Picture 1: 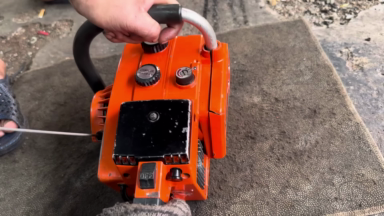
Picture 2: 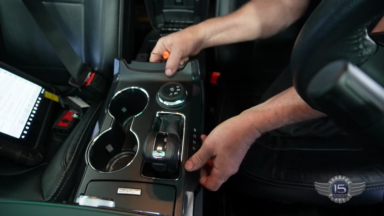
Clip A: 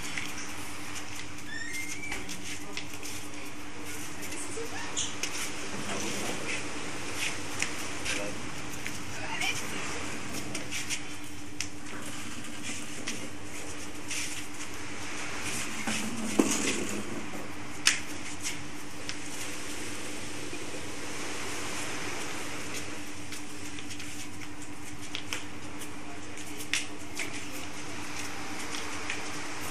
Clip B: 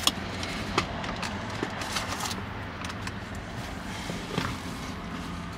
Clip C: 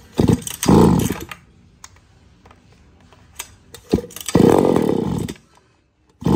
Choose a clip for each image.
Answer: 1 C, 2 B